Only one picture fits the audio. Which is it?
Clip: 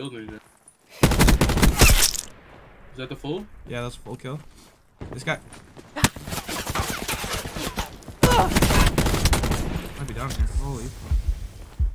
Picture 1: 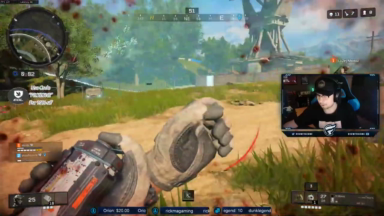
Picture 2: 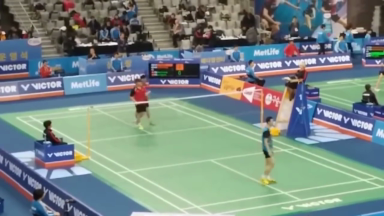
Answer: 1